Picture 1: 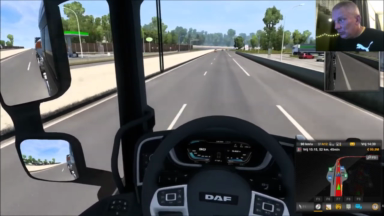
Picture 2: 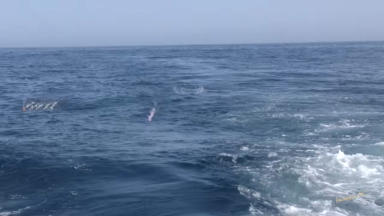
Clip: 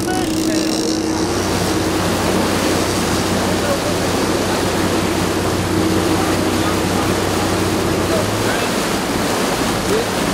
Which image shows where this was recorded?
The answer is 2